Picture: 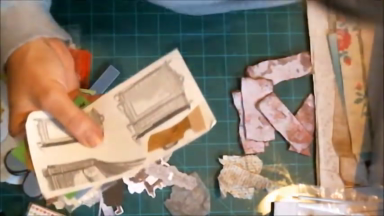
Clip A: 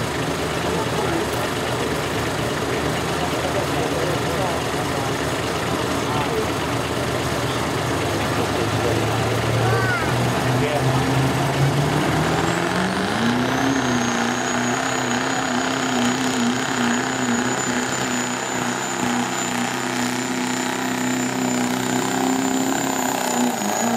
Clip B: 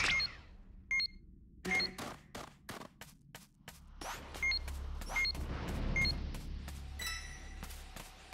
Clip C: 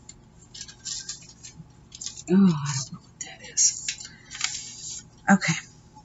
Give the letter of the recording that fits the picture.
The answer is C